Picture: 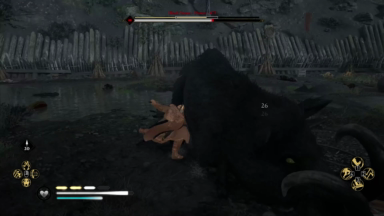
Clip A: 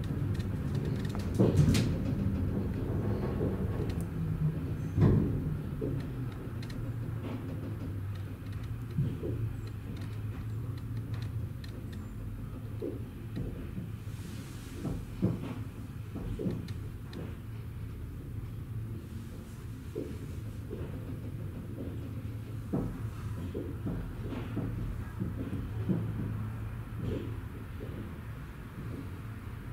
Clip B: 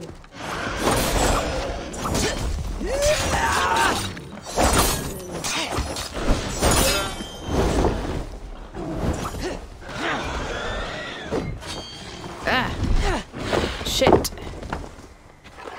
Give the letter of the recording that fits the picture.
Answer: B